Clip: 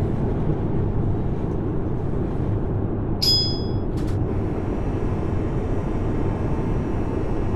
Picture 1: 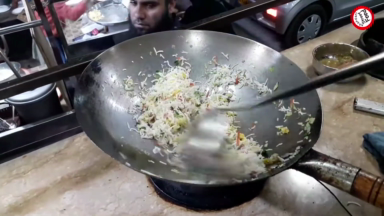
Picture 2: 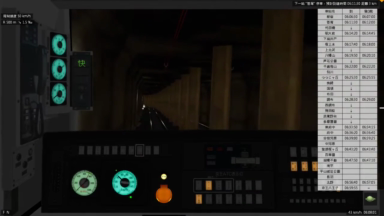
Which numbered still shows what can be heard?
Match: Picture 2